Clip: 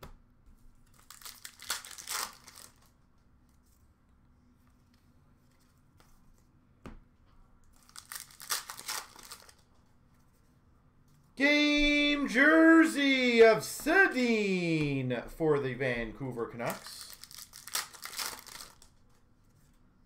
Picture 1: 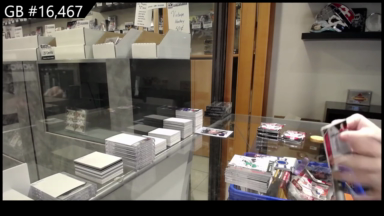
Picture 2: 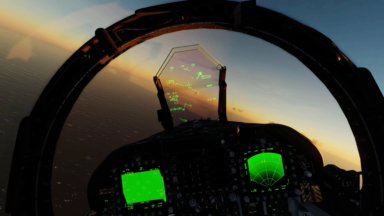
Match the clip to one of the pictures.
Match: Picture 1